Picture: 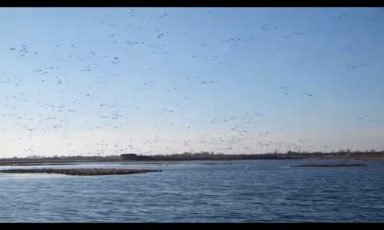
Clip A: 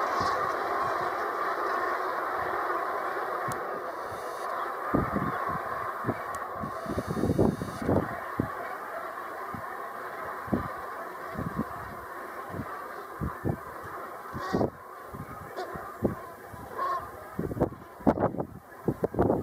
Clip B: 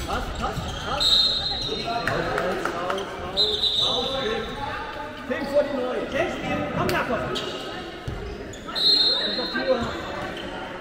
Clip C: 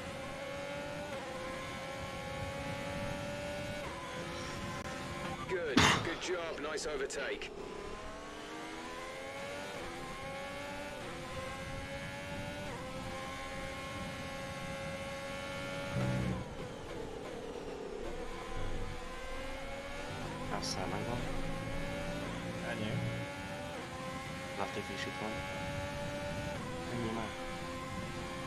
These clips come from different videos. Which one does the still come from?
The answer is A